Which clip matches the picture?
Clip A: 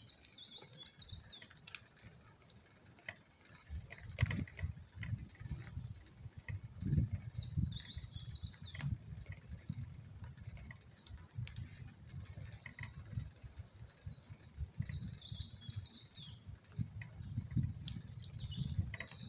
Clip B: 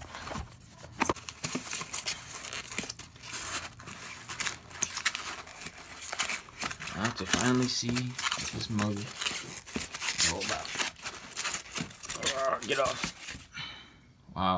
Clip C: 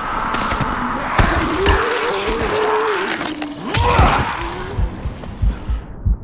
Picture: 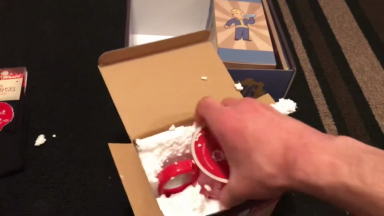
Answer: B